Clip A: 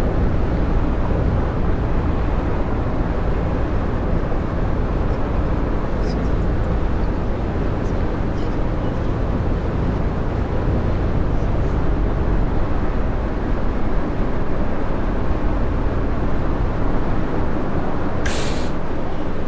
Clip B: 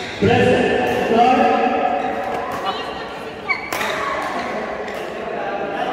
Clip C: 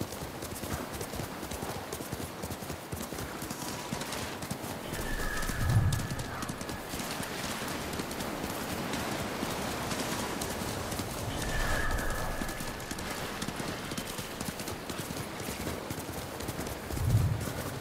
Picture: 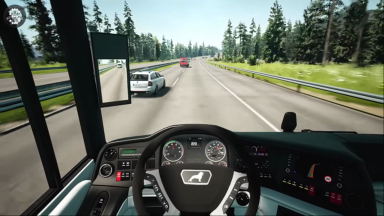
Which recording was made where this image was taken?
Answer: A